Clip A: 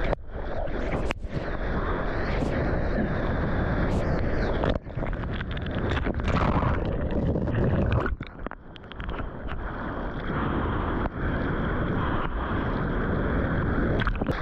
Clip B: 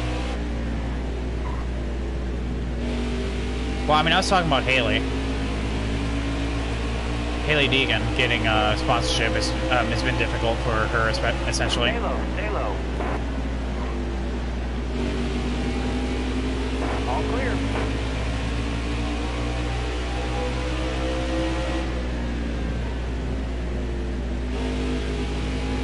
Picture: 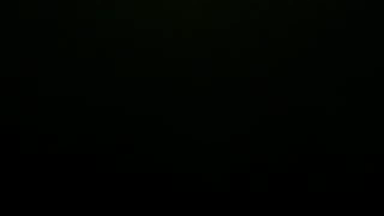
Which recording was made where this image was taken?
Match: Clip A